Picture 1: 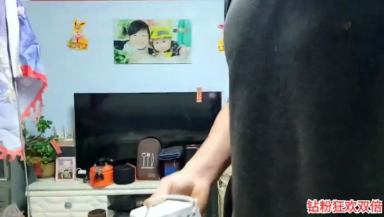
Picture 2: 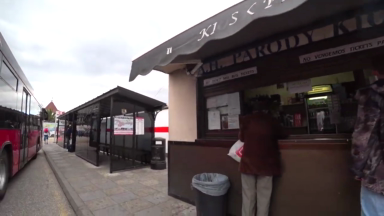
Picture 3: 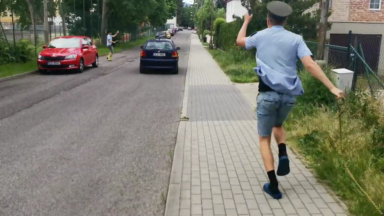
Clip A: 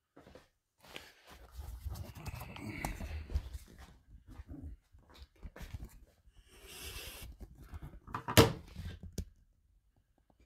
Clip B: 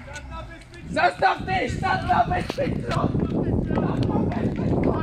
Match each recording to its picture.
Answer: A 1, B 3